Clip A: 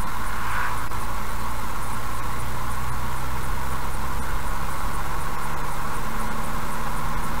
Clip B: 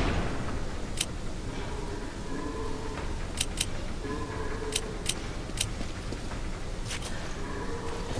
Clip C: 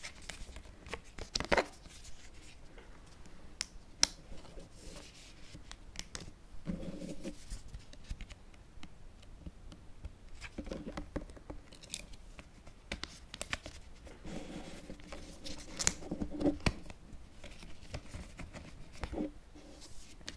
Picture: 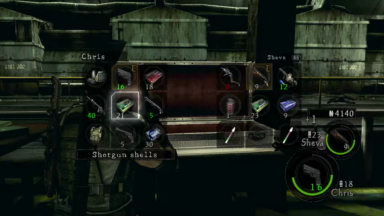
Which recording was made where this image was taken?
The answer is B